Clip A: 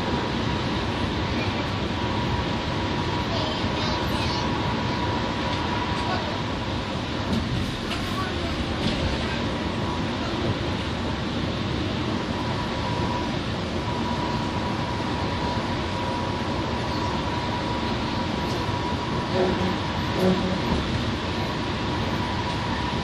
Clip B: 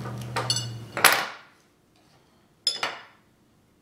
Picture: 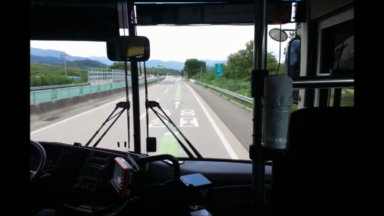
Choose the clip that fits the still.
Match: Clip A